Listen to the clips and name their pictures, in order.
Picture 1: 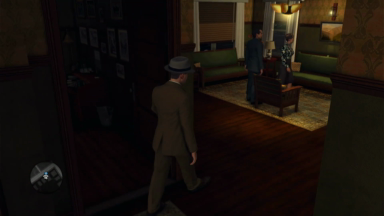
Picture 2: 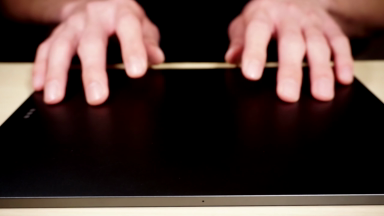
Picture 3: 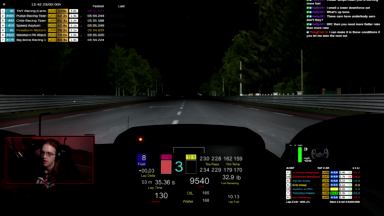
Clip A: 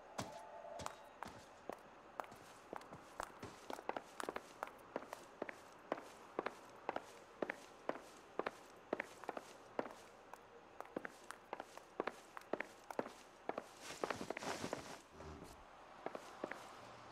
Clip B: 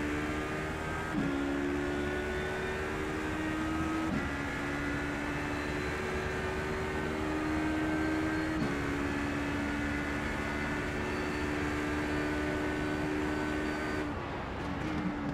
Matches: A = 1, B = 3